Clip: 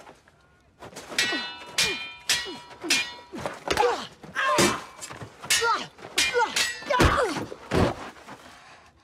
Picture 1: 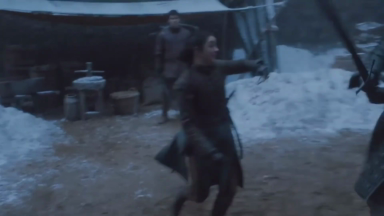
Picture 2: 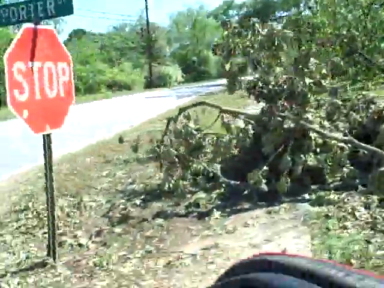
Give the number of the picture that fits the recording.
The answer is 1